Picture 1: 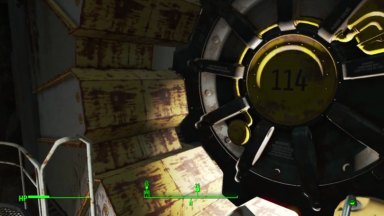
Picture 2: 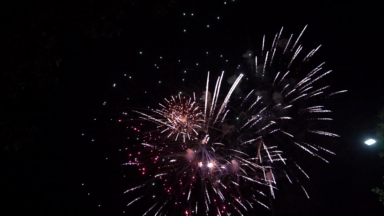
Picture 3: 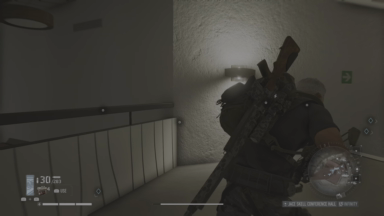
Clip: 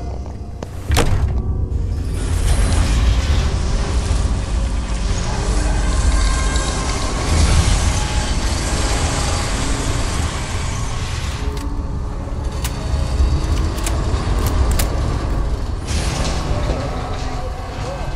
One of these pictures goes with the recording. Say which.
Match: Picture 1